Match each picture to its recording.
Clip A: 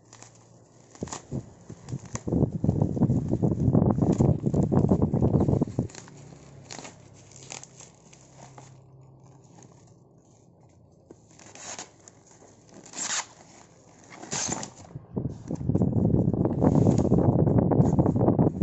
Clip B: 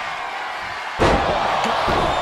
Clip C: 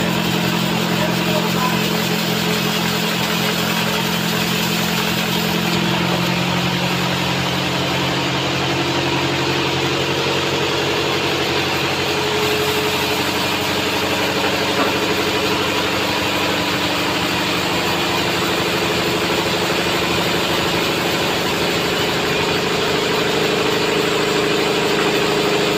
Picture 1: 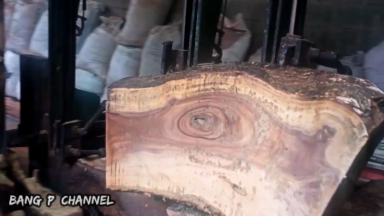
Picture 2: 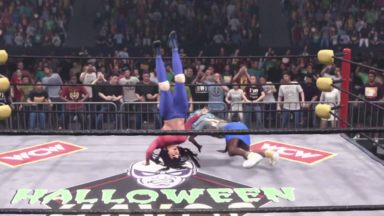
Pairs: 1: C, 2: B